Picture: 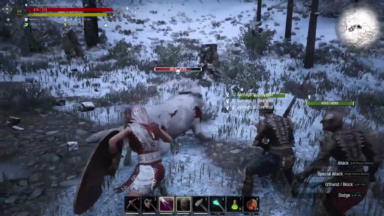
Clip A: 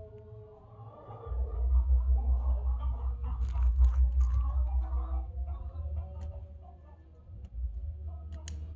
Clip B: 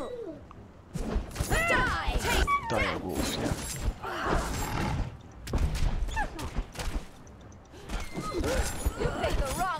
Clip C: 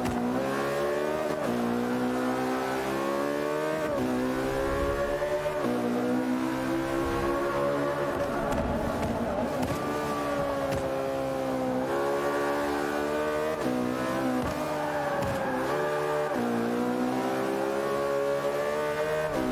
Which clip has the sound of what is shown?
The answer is B